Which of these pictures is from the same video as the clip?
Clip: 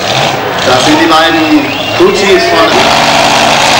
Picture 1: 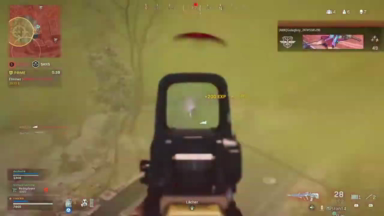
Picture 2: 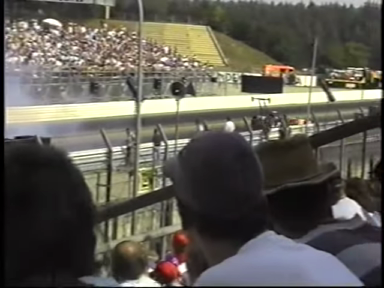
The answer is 2